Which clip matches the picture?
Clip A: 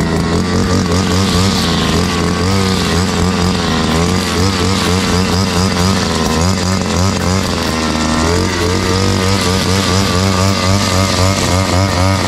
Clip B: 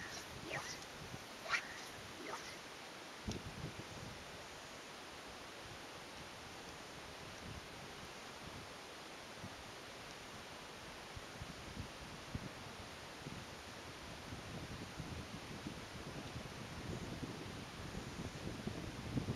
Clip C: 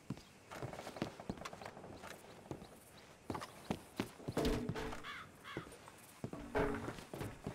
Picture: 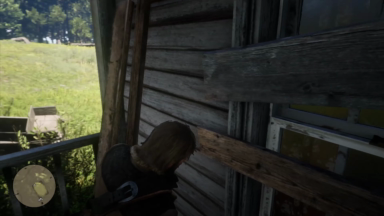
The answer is C